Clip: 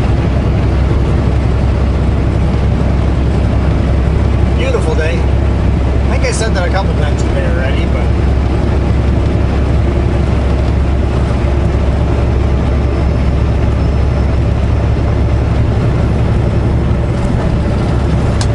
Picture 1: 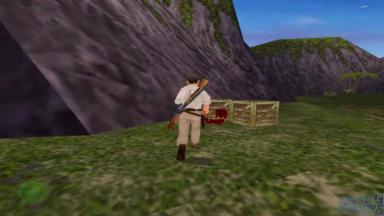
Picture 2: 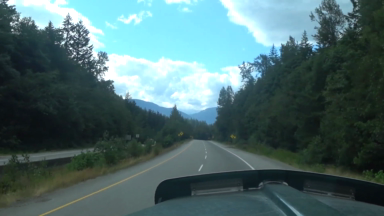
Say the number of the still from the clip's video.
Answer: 2